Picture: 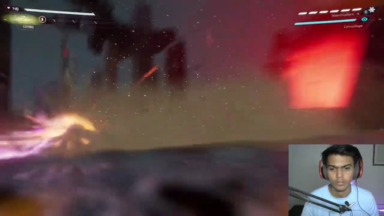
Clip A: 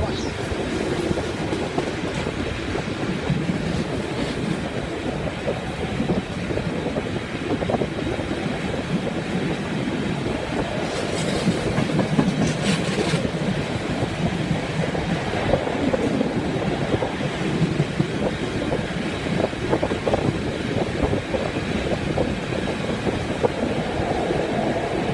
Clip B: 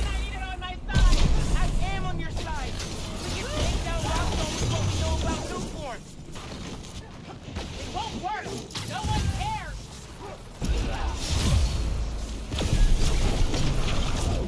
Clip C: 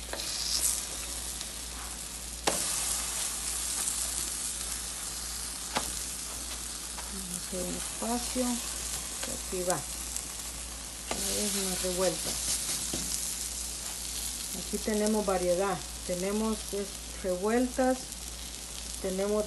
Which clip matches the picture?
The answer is B